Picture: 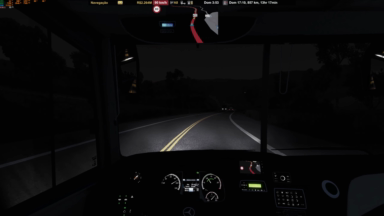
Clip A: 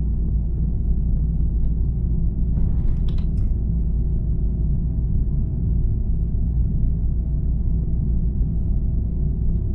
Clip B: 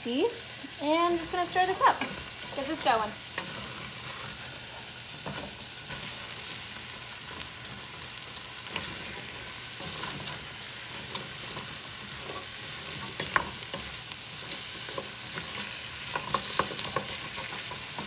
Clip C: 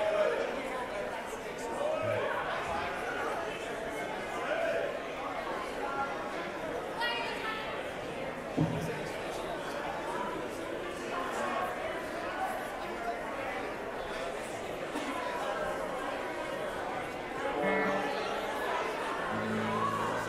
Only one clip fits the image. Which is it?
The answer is A